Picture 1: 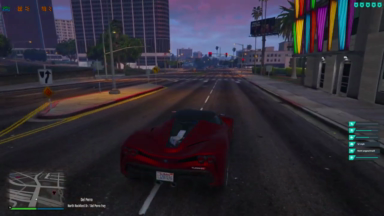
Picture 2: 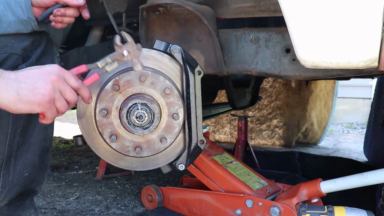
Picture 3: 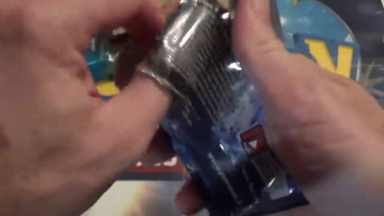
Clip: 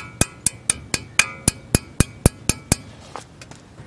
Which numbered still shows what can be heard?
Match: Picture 2